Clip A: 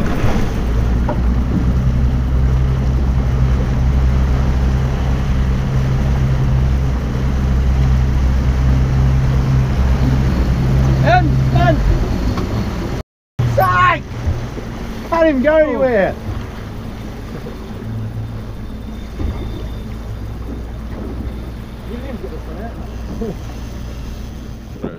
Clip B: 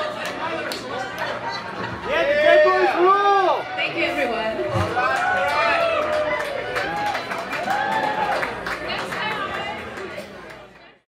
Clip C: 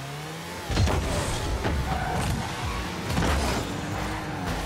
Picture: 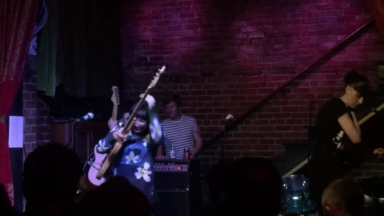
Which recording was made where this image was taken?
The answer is B